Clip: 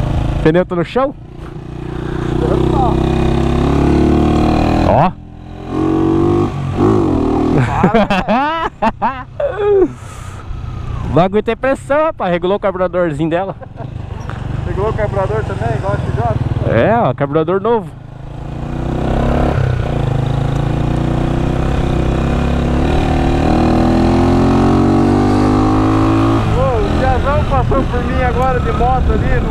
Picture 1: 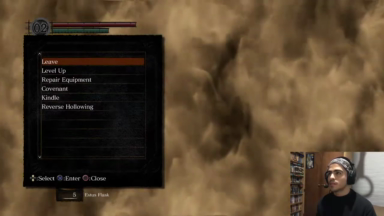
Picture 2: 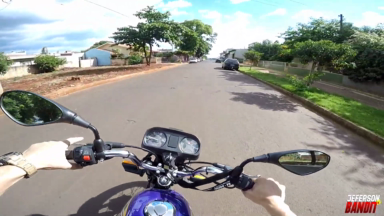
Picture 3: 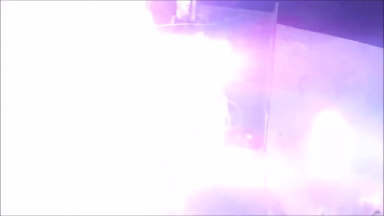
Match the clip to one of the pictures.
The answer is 2